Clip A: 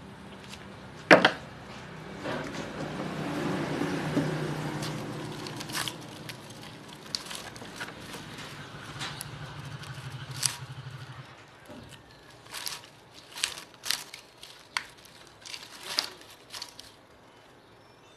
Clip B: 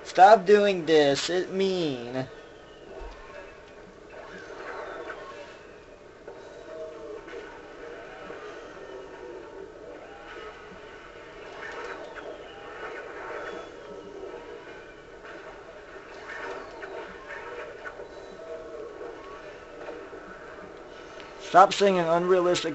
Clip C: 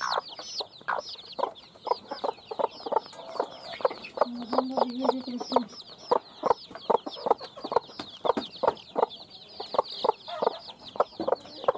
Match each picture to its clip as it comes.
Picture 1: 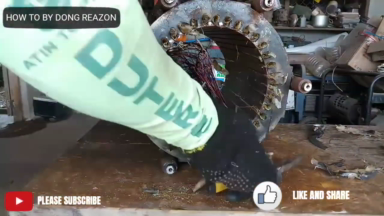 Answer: A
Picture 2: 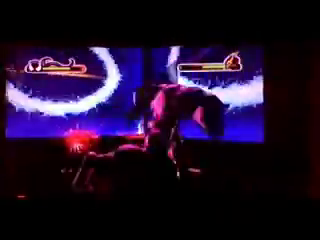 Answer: B